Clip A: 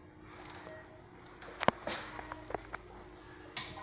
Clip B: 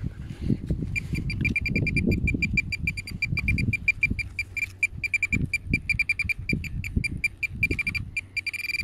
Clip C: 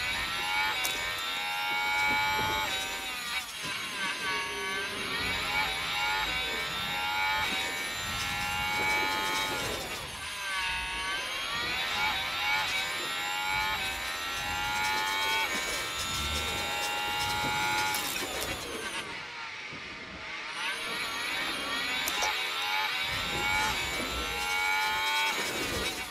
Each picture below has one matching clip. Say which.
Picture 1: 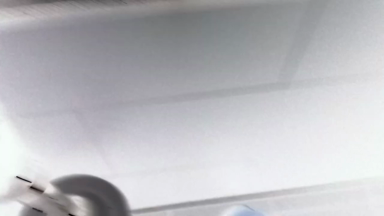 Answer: A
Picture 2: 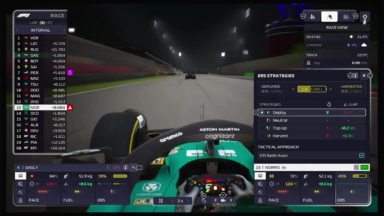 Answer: C